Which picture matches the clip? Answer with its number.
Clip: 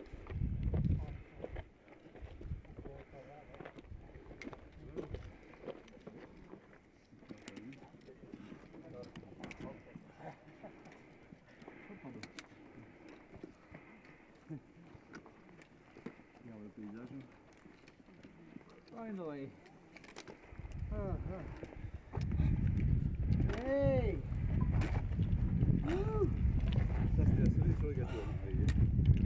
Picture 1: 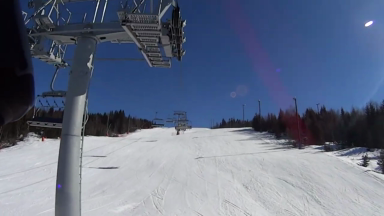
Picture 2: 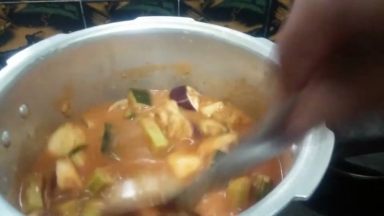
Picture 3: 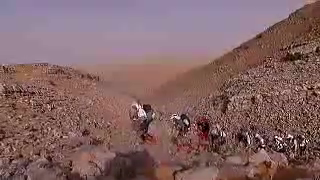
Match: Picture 3